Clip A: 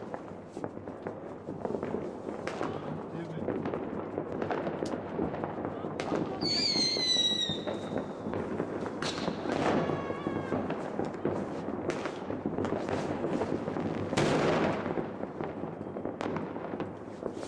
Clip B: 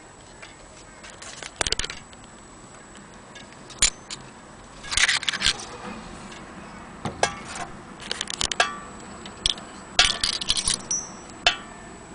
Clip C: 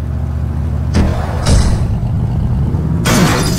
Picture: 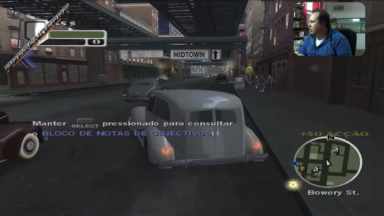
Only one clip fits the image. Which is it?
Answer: C